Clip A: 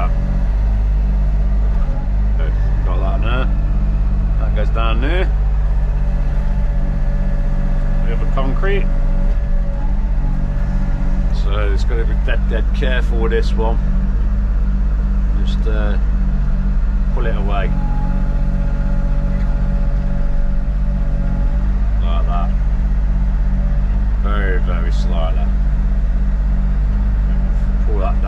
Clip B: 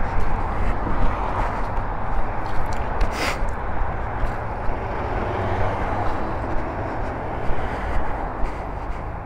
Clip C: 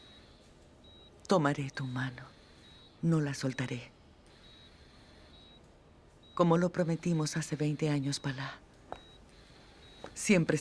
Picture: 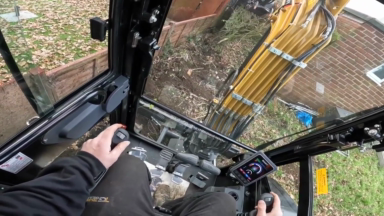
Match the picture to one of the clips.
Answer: A